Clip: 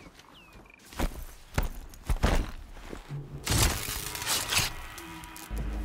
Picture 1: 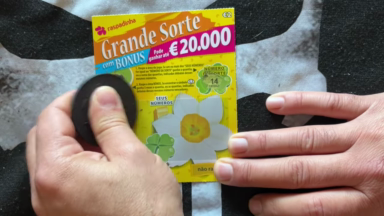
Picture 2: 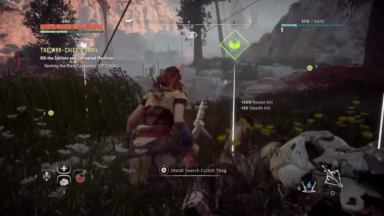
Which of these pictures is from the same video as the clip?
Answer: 2